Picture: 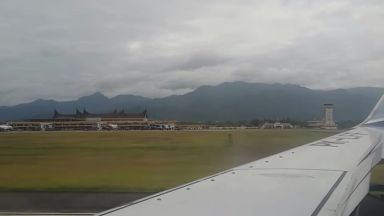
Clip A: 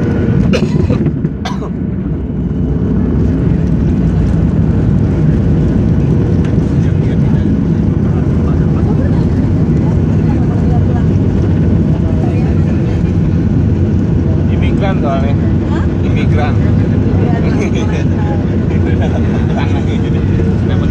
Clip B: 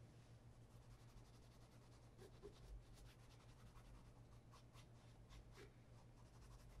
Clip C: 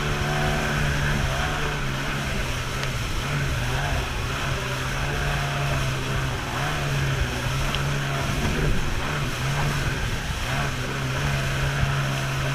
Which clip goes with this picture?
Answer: A